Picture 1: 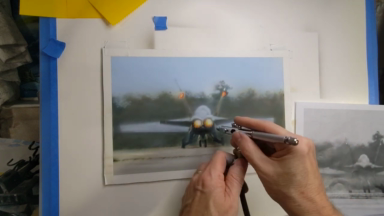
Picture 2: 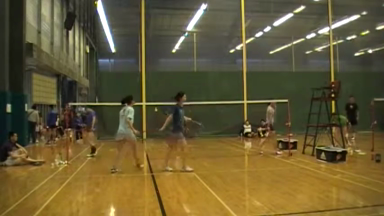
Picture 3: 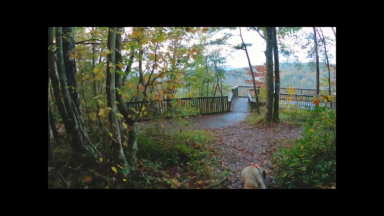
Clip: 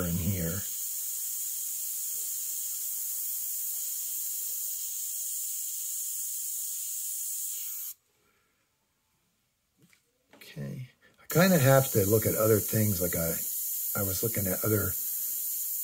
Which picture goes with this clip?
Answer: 1